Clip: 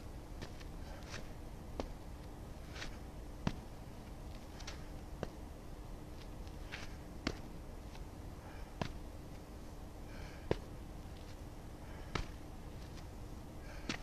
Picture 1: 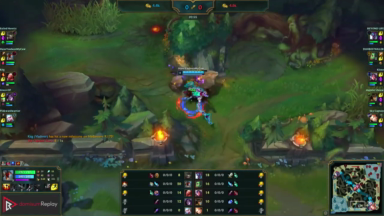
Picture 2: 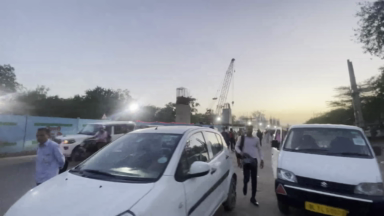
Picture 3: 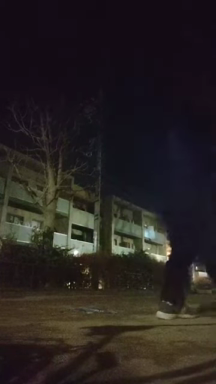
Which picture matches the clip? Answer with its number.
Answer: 3